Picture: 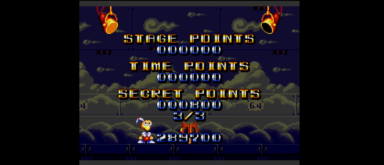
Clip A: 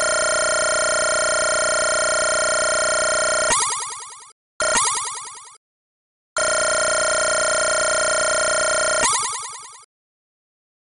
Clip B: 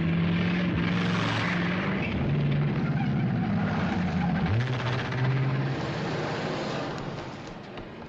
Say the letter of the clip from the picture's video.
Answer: A